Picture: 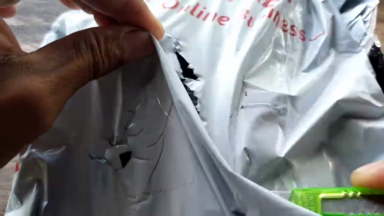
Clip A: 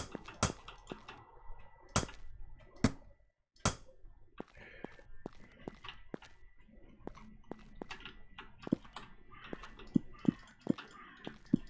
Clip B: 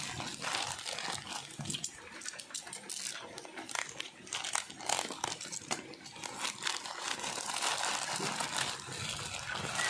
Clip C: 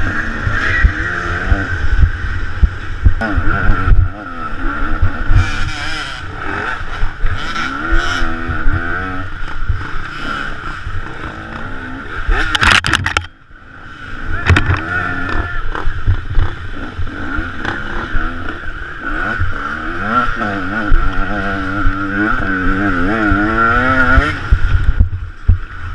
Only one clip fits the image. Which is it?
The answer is B